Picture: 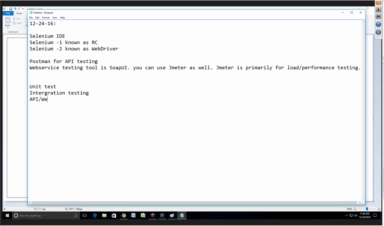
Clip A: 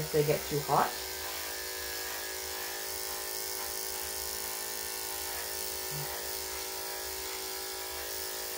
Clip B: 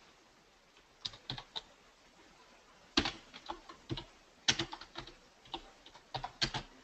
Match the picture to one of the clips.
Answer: B